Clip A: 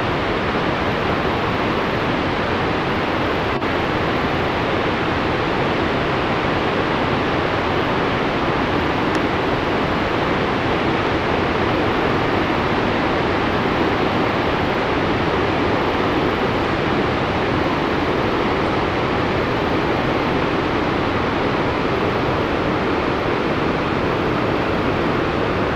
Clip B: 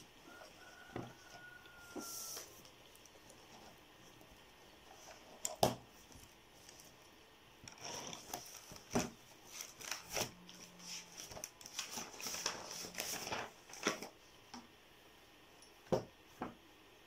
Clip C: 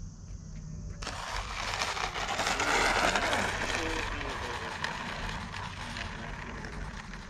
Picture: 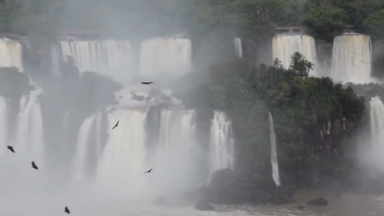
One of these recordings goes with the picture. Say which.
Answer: A